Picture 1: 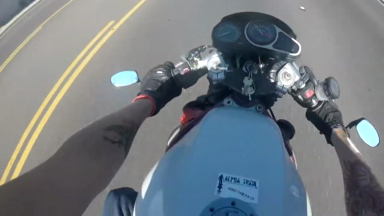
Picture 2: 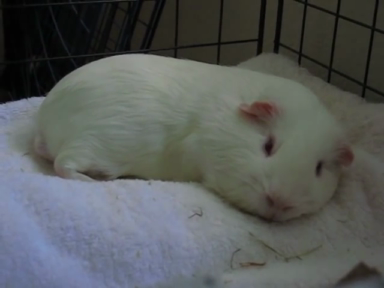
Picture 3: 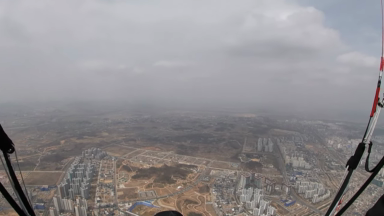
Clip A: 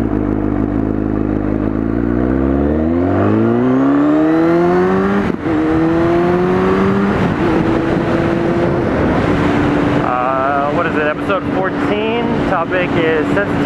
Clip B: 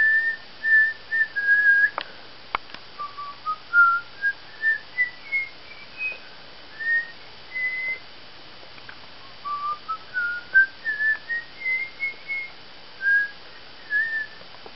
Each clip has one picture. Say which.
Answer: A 1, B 2